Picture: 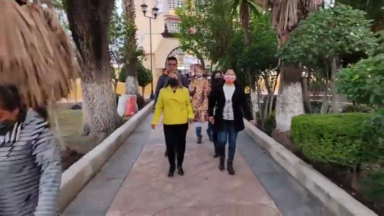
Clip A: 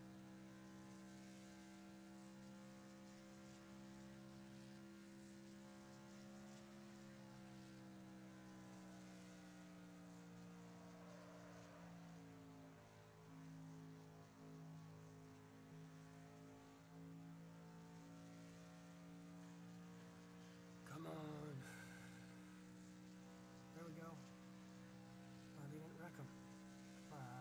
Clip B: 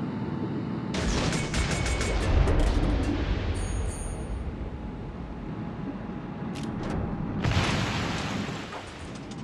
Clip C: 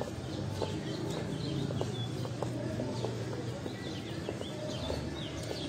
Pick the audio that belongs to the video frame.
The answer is C